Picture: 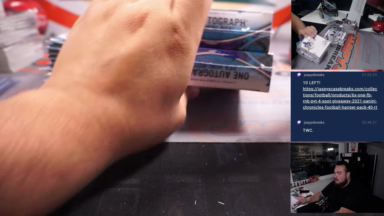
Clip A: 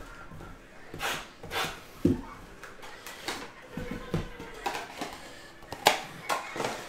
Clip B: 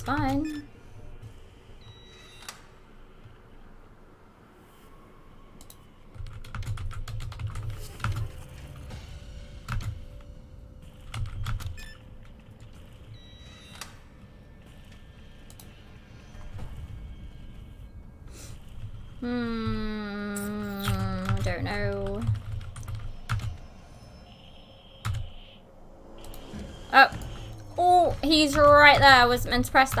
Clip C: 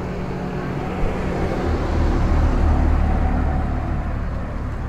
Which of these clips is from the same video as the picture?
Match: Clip A